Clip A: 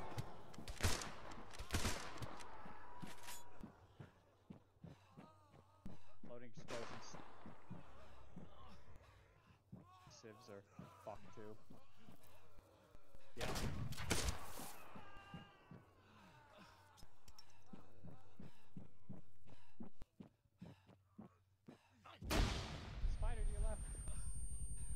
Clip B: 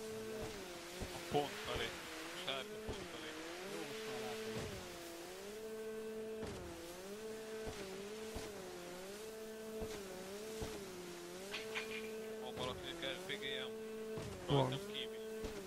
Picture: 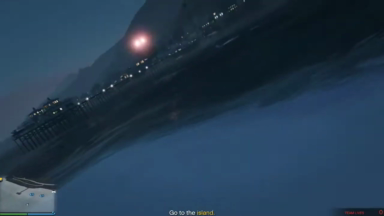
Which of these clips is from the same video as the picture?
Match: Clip B